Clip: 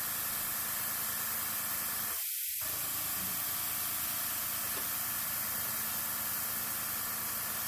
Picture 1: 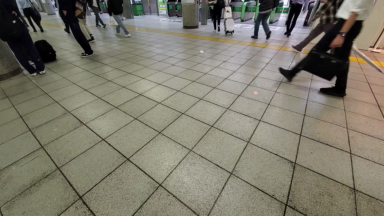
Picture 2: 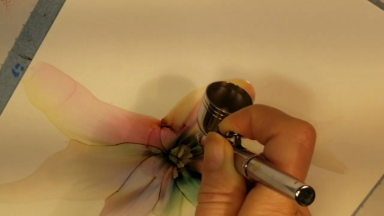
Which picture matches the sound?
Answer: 2